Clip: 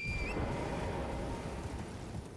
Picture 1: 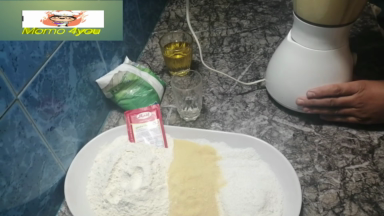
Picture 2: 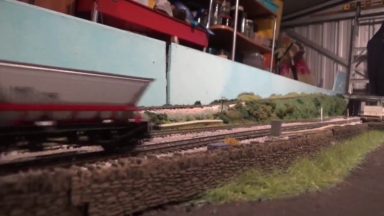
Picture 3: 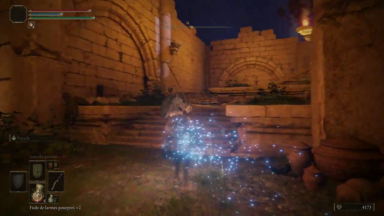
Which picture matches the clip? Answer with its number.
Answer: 3